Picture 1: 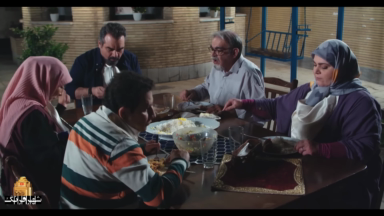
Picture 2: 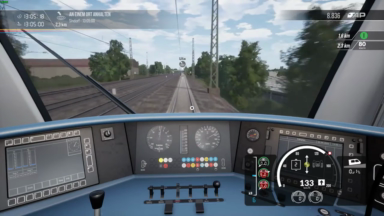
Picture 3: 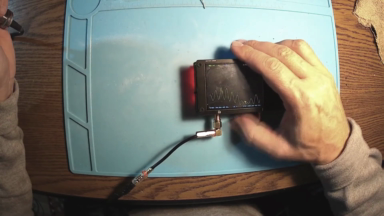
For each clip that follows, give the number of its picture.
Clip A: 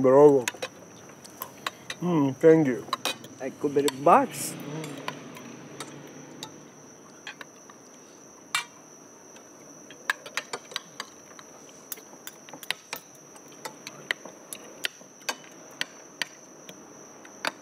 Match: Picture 1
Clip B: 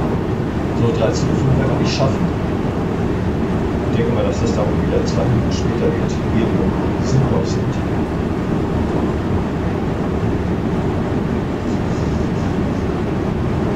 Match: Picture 2